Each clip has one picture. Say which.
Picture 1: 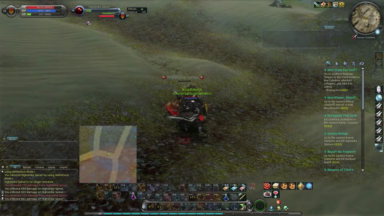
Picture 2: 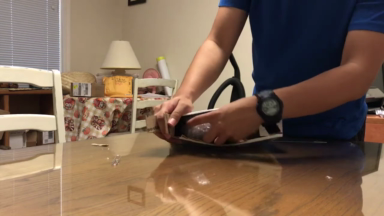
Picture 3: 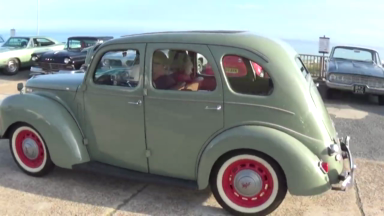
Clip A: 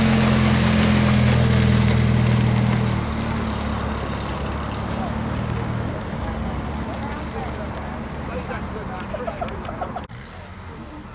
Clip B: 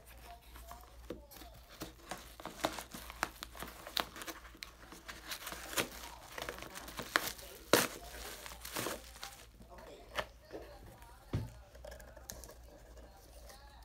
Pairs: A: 3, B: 2